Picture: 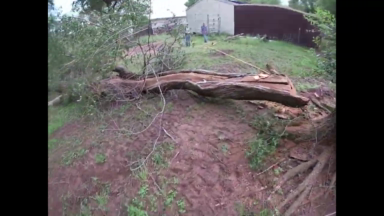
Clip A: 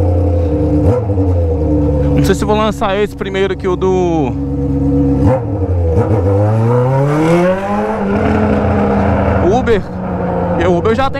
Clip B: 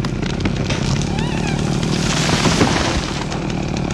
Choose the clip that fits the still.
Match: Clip B